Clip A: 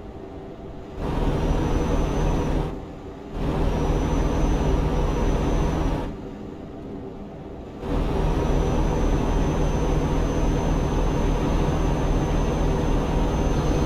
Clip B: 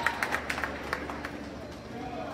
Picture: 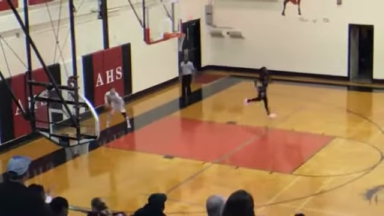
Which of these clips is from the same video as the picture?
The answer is B